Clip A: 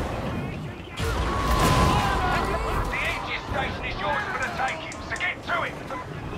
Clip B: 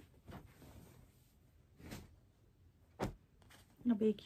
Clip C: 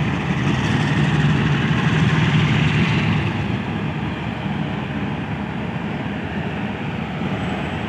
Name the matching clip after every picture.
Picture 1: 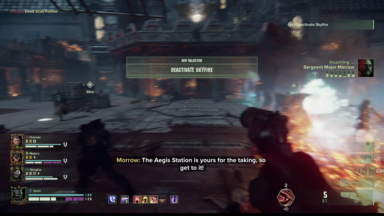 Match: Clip A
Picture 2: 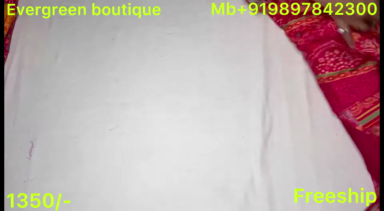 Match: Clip B